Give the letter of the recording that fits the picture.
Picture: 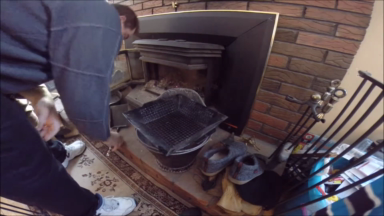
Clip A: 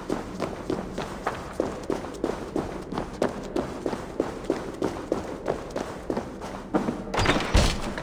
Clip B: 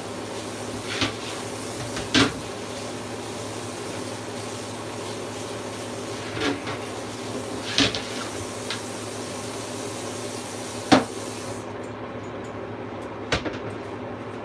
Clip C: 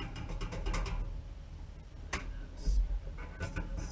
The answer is C